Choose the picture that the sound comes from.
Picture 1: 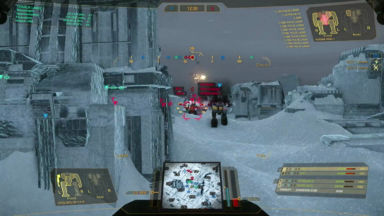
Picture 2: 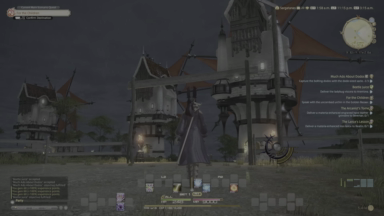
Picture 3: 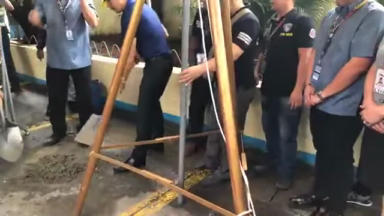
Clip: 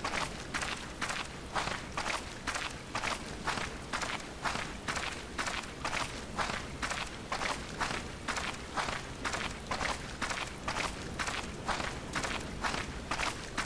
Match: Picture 2